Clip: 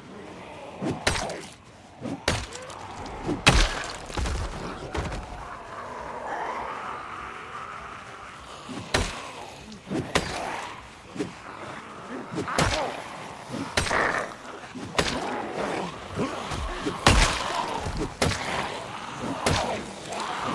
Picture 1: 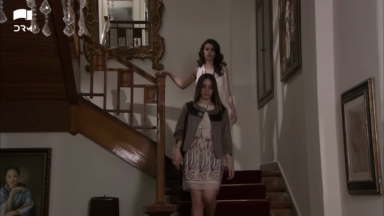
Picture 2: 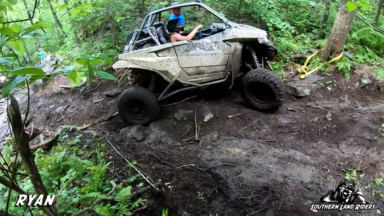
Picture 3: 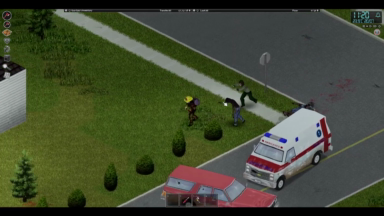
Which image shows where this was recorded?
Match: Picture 3